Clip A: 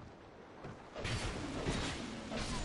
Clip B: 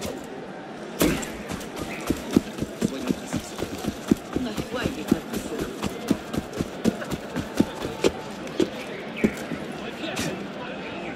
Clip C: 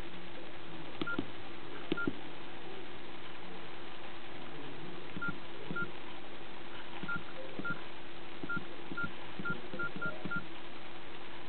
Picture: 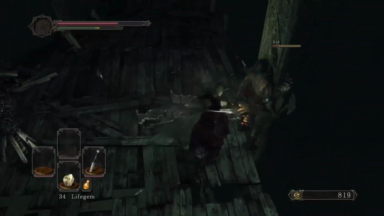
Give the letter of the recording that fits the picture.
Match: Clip A